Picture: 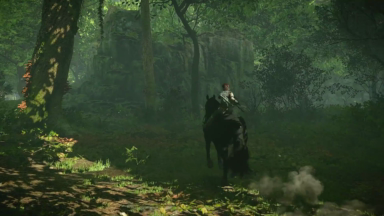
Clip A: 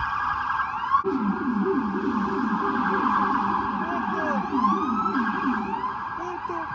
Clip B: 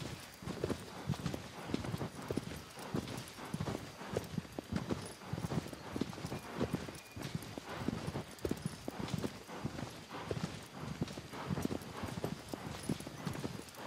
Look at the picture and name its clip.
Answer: B